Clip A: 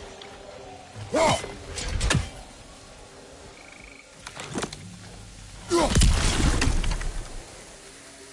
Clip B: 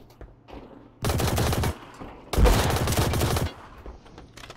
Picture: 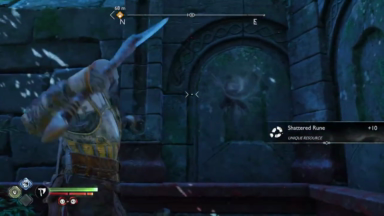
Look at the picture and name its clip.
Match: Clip A